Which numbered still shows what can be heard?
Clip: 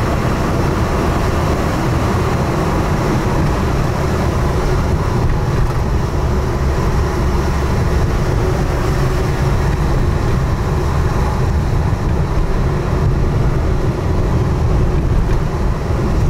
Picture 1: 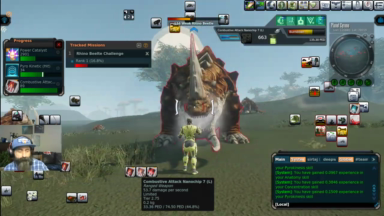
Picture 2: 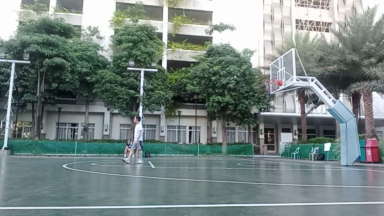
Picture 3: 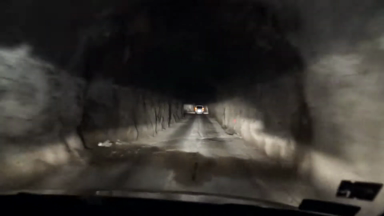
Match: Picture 3